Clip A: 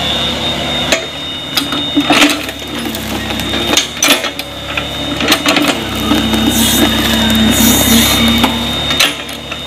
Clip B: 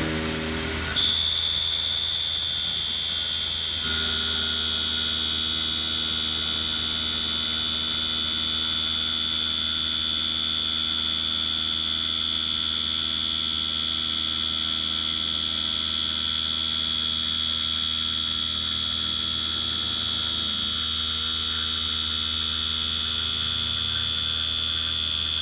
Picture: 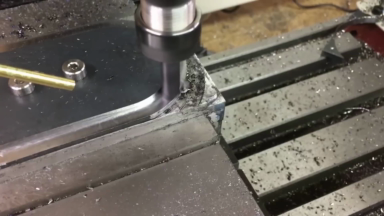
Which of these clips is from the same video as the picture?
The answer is B